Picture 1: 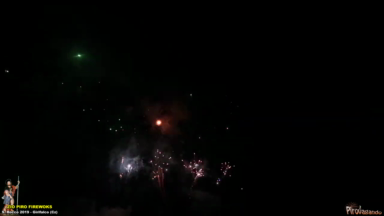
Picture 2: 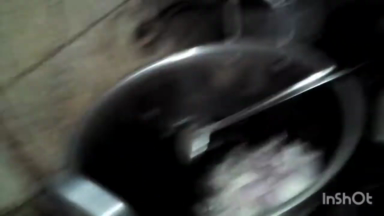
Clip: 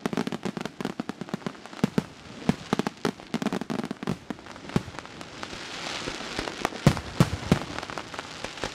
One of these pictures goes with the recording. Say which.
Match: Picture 1